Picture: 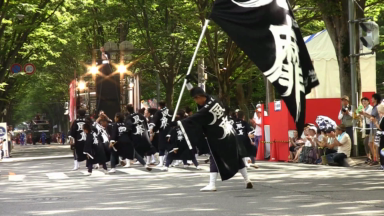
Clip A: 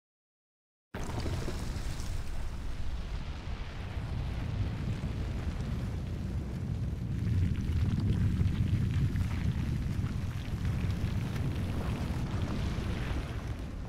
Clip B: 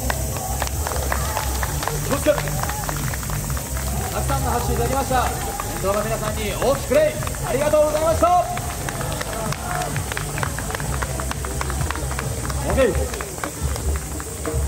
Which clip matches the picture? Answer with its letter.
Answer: B